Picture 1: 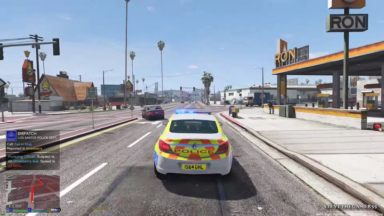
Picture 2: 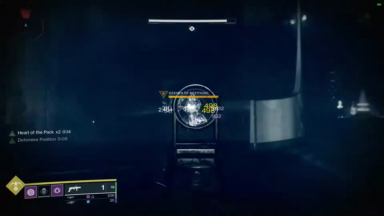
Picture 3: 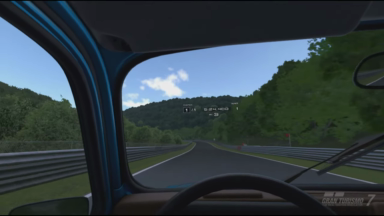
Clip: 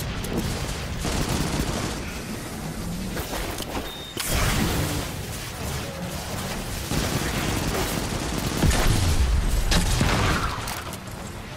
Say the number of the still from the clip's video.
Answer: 2